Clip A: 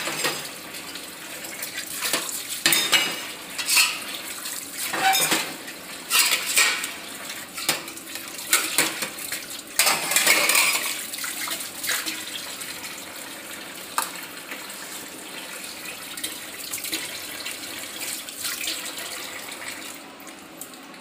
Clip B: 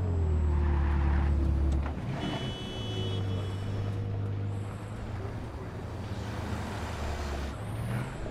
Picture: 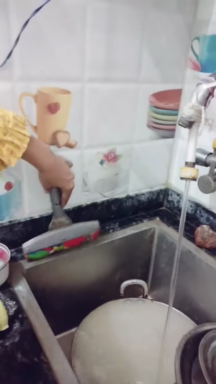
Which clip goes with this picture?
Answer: A